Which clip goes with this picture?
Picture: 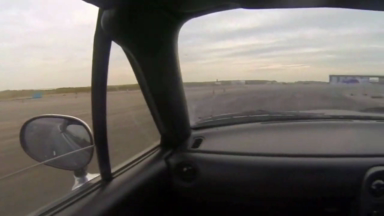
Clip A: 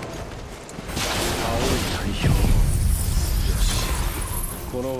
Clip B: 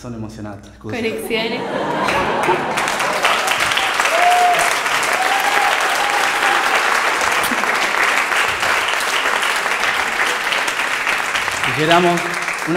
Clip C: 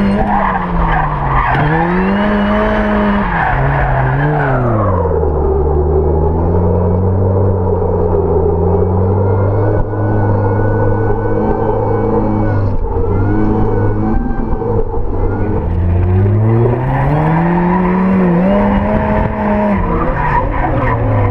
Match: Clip C